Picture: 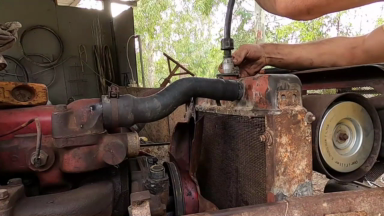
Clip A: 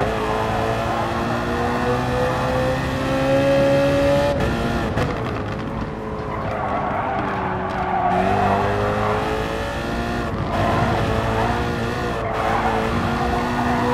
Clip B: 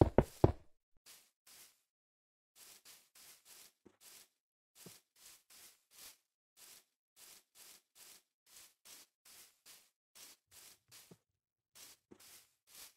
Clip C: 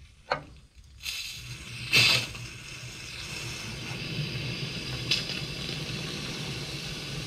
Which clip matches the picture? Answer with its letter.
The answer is C